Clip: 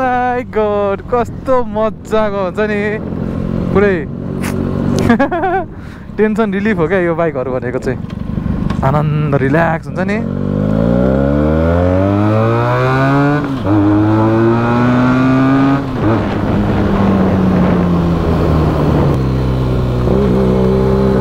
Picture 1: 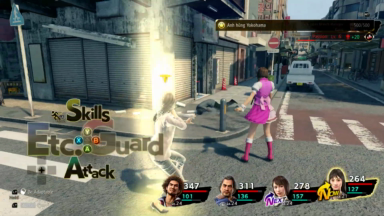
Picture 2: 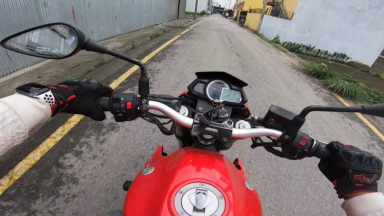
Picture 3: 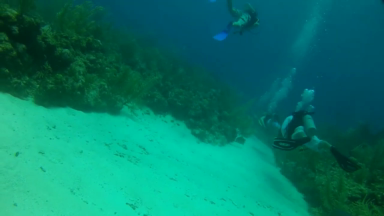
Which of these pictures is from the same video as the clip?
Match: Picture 2